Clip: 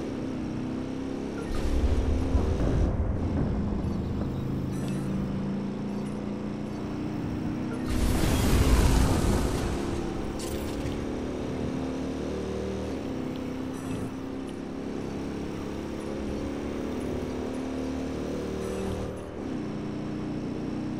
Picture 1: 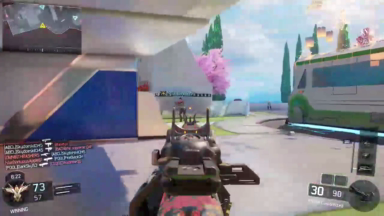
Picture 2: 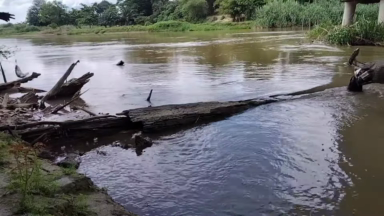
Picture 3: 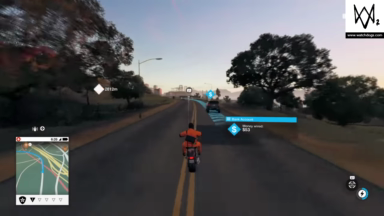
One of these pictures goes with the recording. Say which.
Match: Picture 3